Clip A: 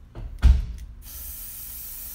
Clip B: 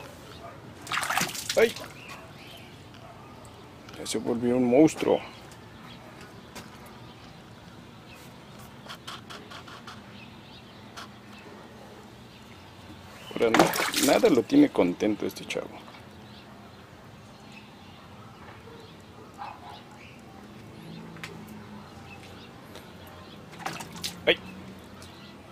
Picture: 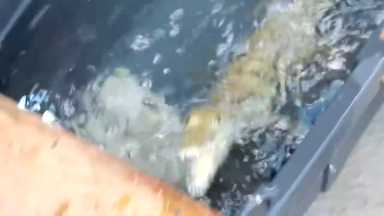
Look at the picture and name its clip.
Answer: B